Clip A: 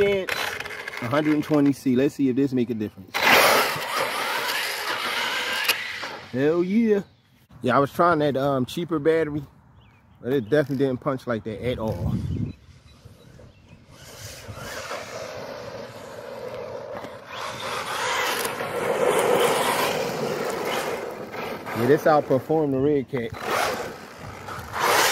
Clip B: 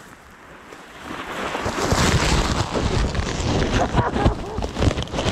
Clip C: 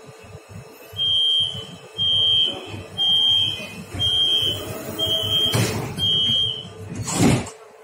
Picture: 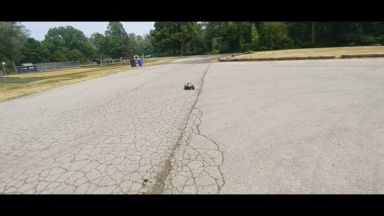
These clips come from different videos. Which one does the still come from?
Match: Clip A